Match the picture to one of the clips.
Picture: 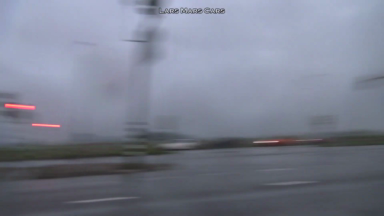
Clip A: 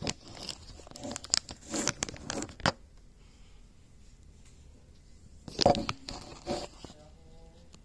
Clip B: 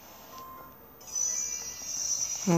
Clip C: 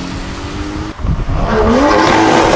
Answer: C